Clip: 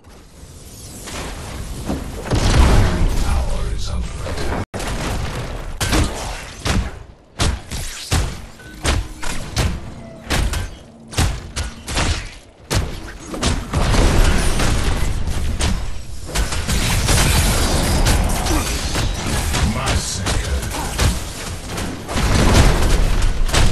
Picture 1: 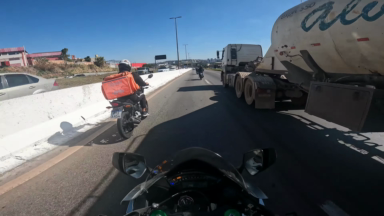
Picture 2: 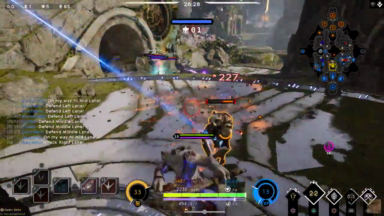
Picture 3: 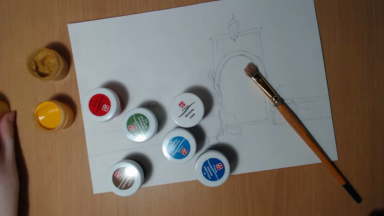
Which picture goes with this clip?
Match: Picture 2